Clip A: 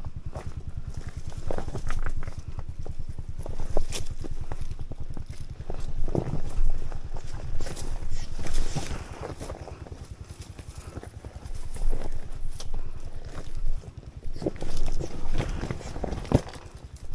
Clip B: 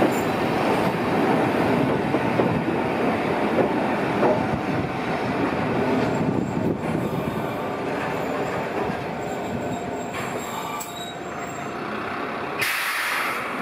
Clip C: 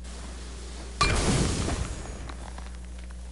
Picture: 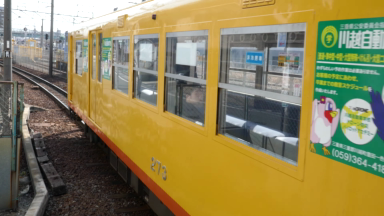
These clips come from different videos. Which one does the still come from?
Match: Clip B